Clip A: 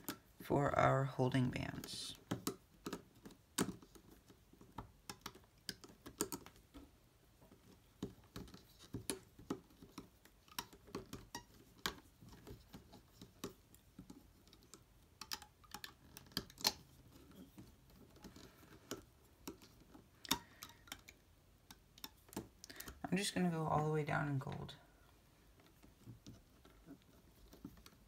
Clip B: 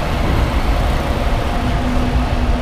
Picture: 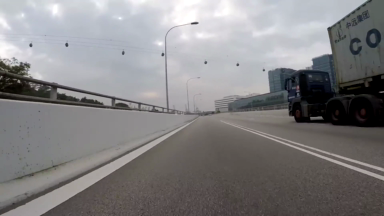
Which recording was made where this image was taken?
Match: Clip B